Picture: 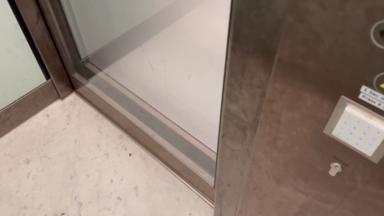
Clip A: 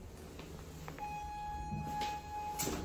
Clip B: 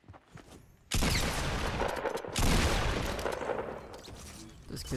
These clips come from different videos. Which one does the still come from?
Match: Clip A